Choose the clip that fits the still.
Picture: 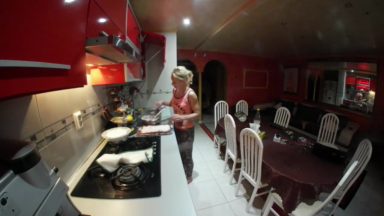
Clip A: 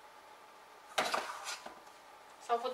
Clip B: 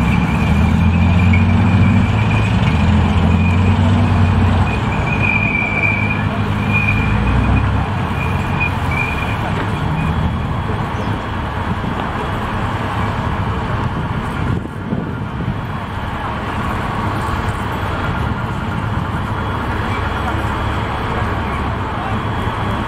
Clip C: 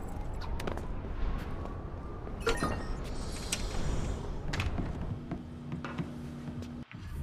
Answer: A